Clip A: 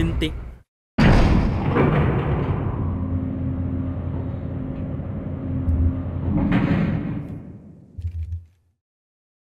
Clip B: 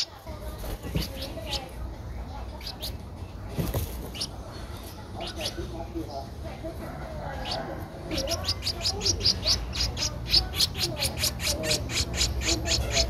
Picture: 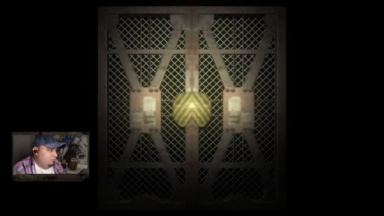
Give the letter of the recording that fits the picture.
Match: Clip A